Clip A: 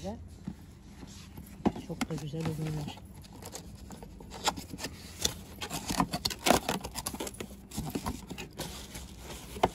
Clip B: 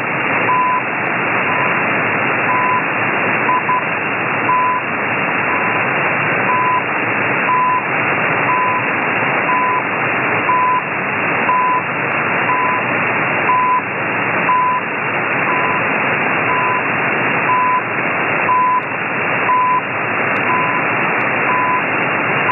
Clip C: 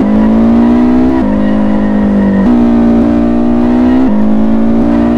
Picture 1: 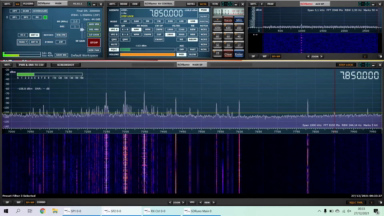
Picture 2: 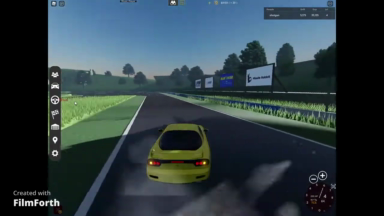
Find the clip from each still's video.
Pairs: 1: B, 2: C